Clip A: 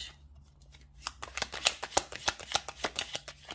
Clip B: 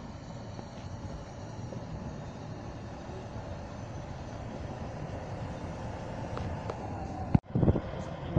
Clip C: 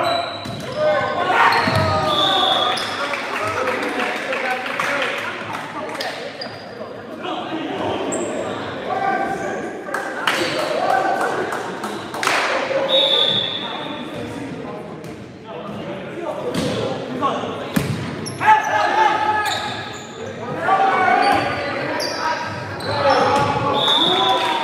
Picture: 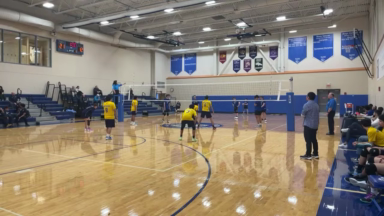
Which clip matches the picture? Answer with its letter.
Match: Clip C